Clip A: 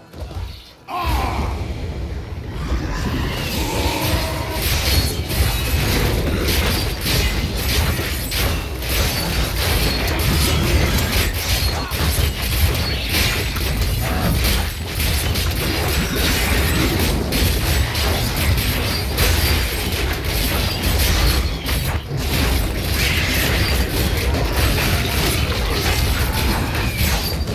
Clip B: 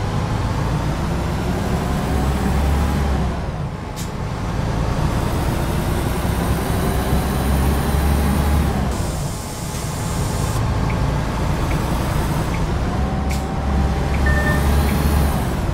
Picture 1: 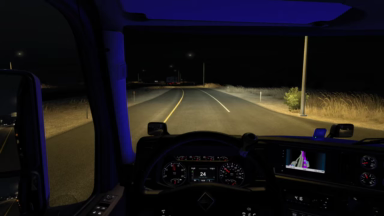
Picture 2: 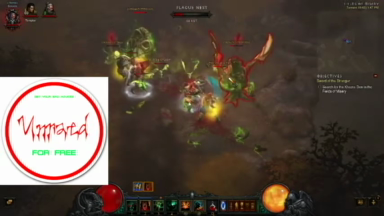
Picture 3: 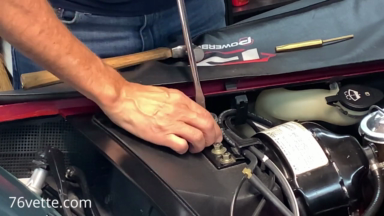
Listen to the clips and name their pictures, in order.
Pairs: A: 2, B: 1